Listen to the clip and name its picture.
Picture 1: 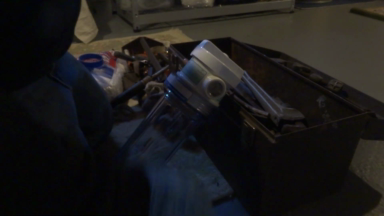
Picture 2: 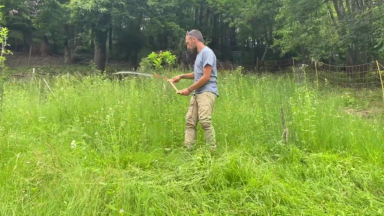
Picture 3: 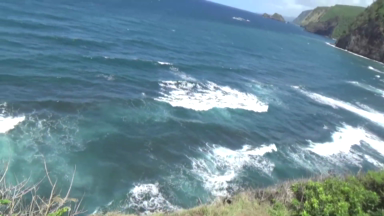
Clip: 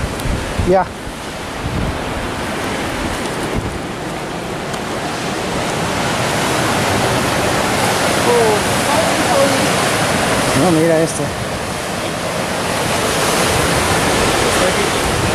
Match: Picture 3